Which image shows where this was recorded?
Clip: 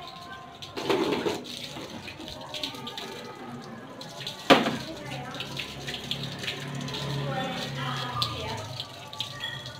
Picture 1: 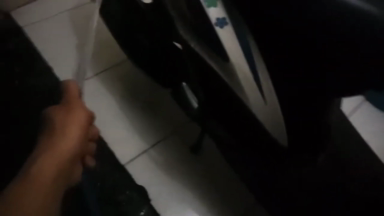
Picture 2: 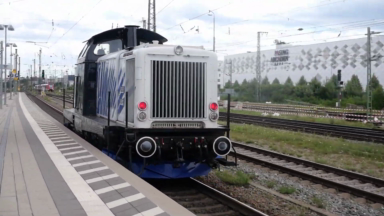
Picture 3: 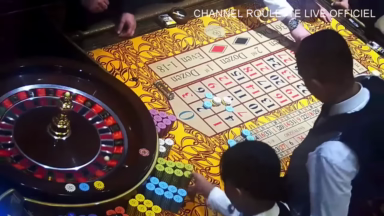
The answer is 1